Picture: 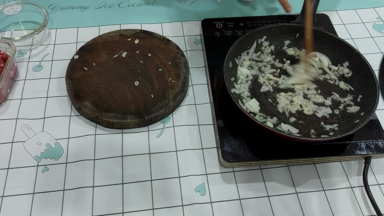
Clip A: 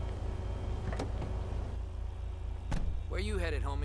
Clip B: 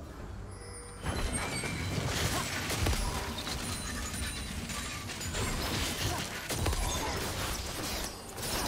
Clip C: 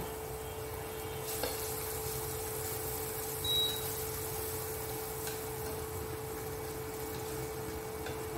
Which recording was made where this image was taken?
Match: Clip C